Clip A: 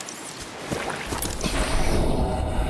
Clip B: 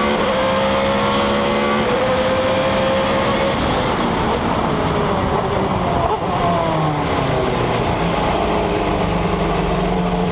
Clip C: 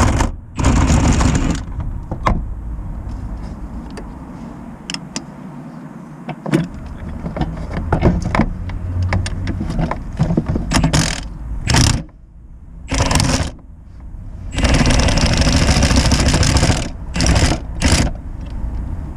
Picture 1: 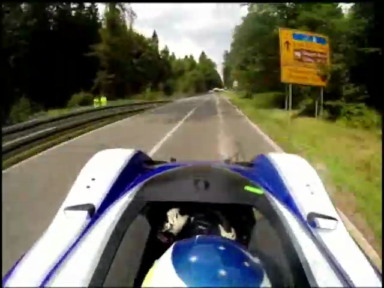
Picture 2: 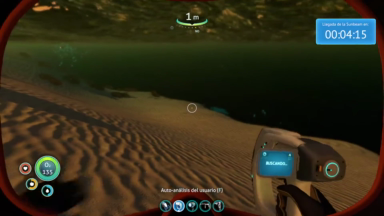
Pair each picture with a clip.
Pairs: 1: B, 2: A